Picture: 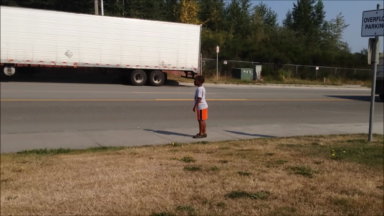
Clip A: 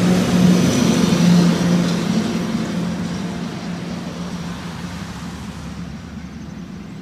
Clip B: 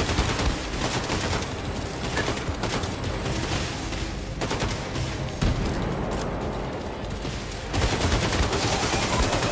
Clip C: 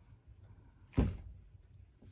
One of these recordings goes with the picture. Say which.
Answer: A